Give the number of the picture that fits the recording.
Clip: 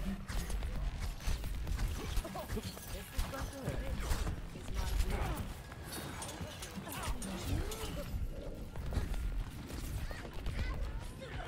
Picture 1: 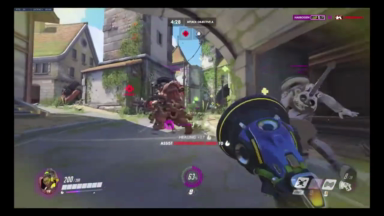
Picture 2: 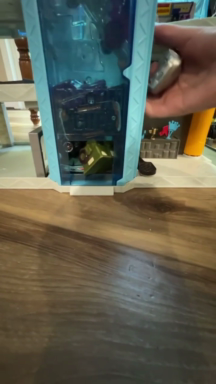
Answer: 1